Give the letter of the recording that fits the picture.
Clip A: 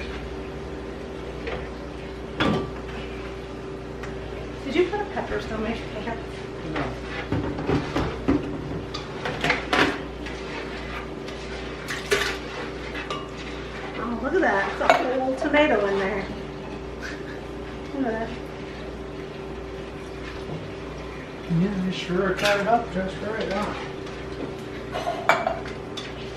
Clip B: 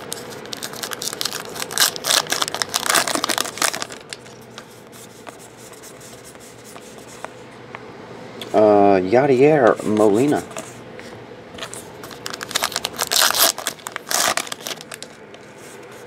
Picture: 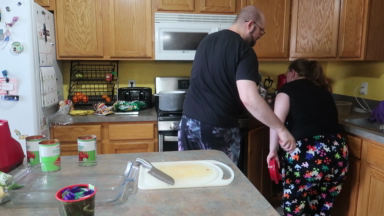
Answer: A